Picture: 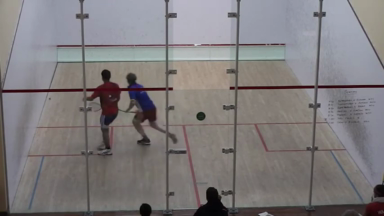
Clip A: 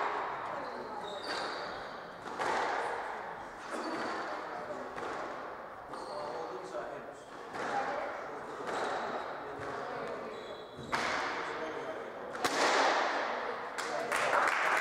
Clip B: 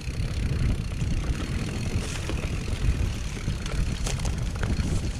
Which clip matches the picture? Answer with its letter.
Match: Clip A